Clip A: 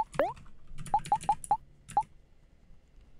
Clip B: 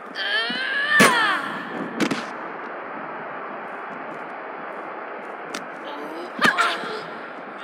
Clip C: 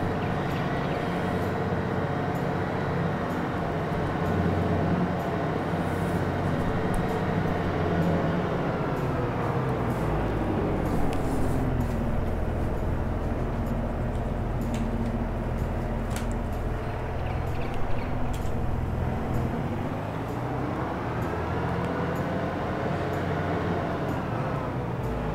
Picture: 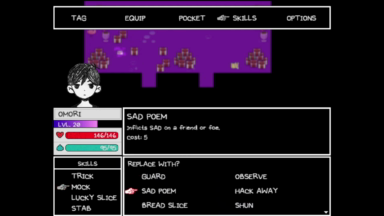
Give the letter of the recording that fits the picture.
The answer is A